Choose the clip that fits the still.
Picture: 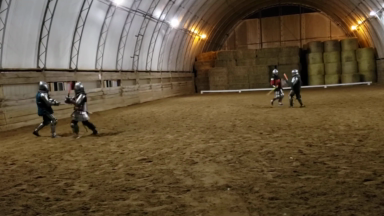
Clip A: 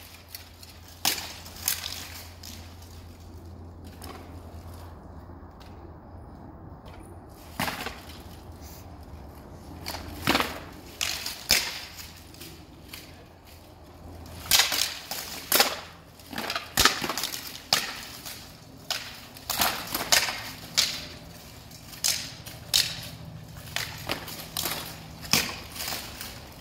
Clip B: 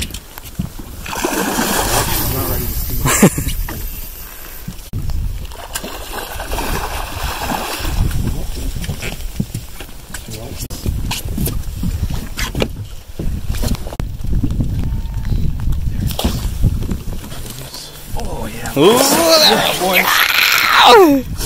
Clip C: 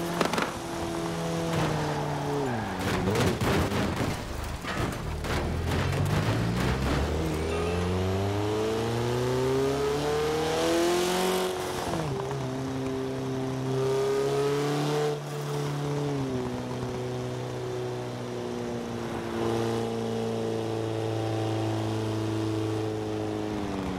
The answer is A